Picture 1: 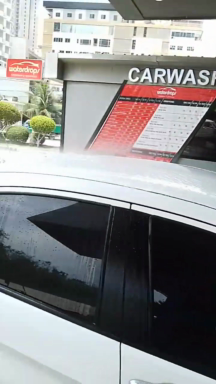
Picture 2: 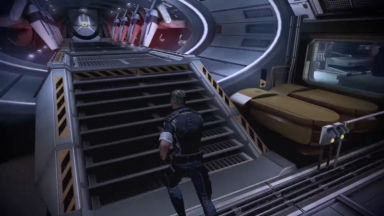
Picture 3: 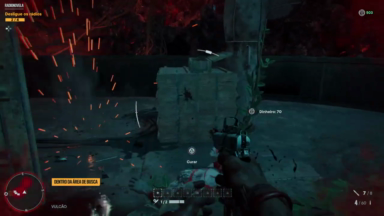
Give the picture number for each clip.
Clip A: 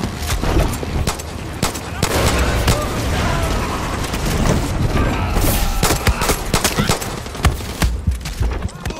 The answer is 3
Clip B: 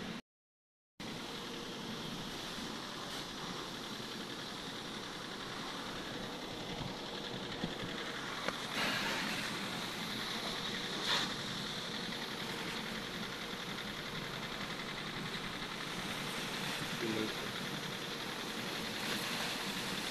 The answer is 1